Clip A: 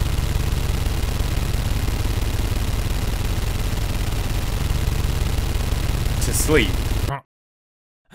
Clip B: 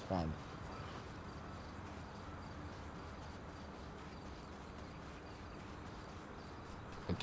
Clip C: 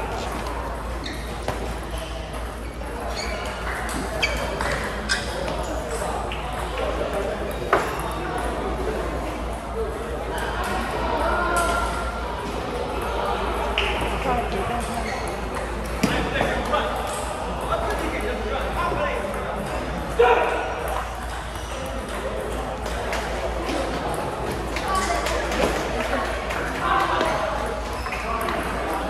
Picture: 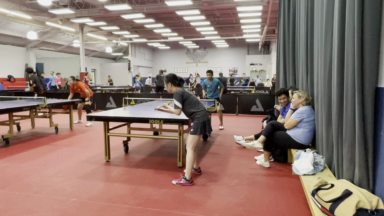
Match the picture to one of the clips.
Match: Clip C